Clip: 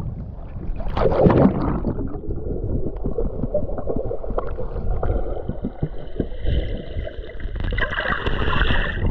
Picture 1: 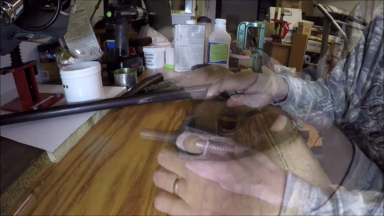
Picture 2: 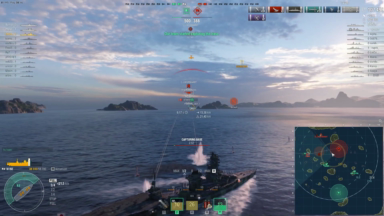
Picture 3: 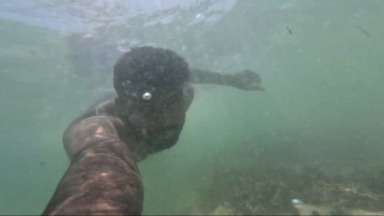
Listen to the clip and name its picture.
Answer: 3